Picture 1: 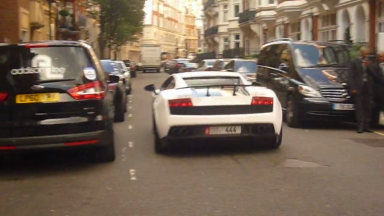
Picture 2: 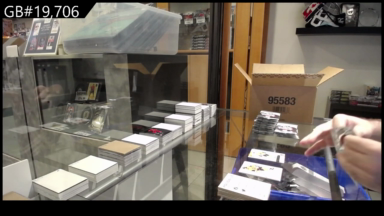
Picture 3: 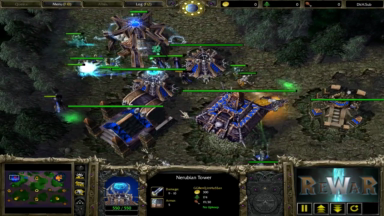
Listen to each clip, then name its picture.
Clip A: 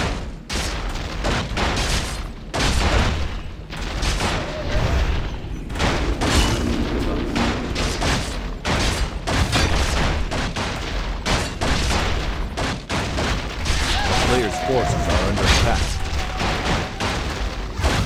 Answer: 3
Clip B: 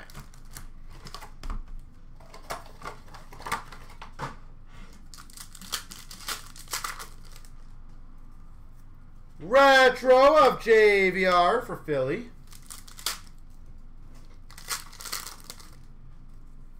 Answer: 2